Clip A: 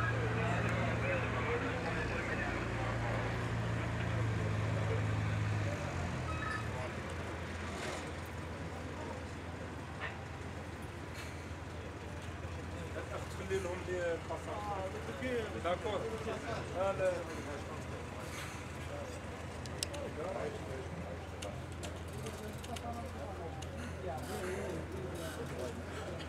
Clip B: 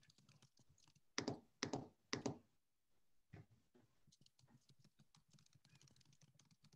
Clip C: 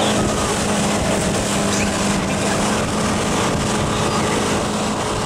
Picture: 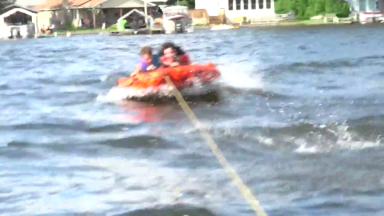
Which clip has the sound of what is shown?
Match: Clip C